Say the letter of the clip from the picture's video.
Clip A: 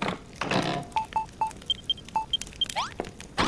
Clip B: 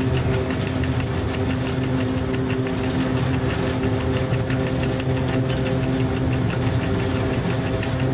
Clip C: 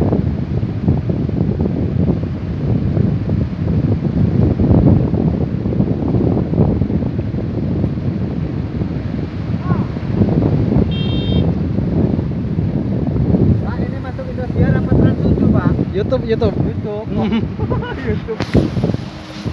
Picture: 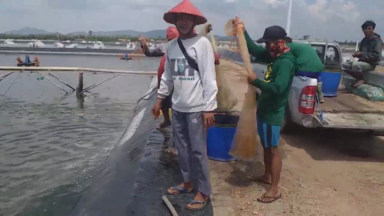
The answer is C